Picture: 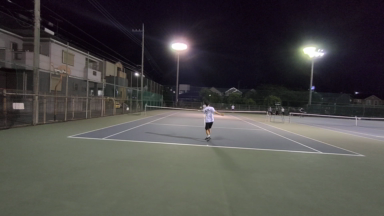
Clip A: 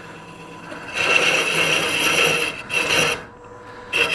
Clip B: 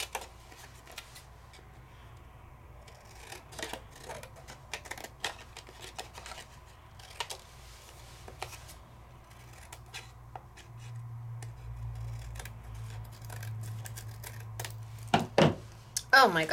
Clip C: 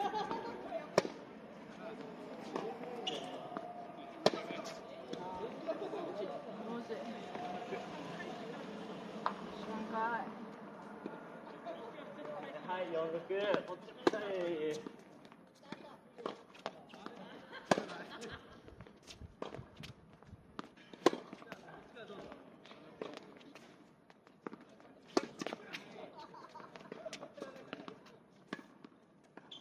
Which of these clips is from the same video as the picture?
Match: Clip C